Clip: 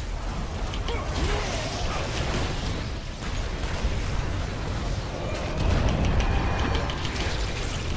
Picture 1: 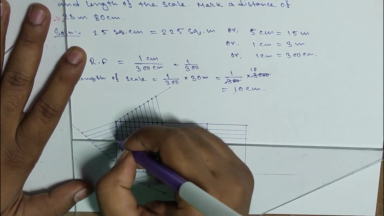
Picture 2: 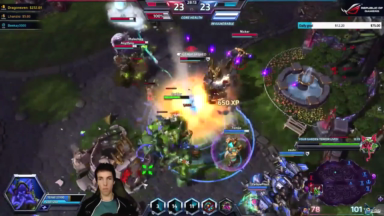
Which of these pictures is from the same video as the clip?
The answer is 2